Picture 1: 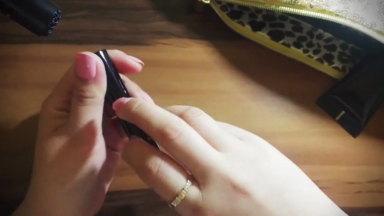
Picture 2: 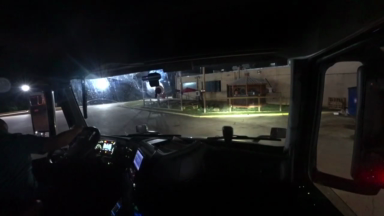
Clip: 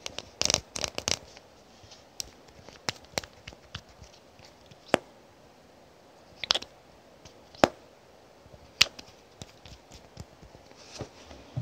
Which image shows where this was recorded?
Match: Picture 1